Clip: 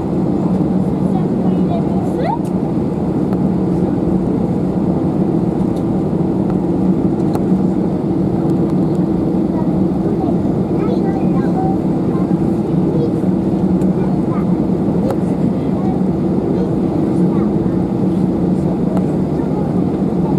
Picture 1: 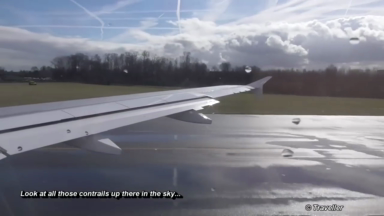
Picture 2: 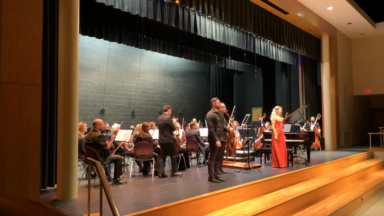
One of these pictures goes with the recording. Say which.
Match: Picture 1